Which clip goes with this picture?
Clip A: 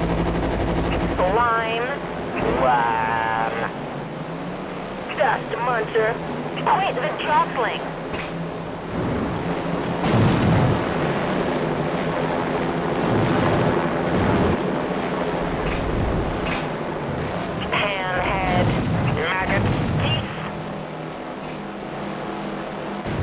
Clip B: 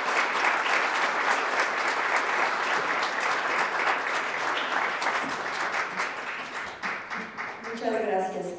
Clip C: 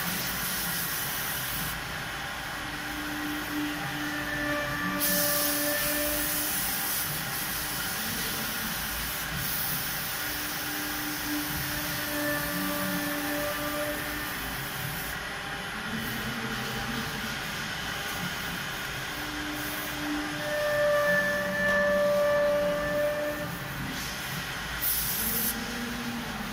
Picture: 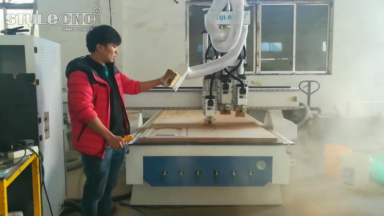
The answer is C